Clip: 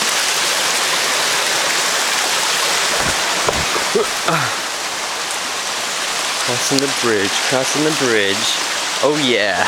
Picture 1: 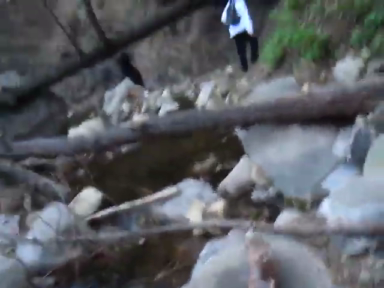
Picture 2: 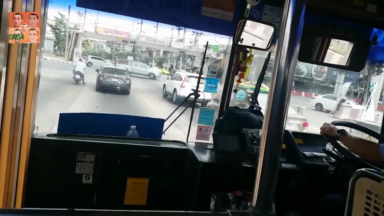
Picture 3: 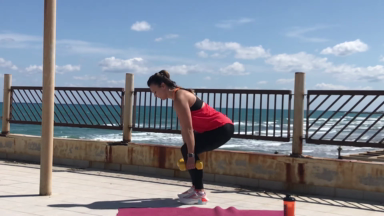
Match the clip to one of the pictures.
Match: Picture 1